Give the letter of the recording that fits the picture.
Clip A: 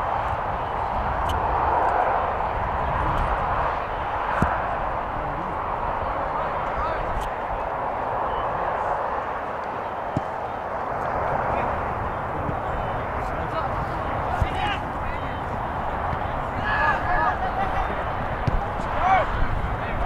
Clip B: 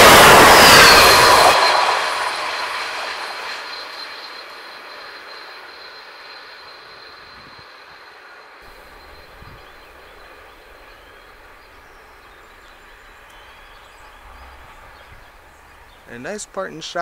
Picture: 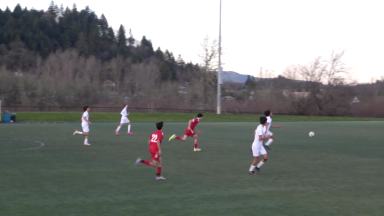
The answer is A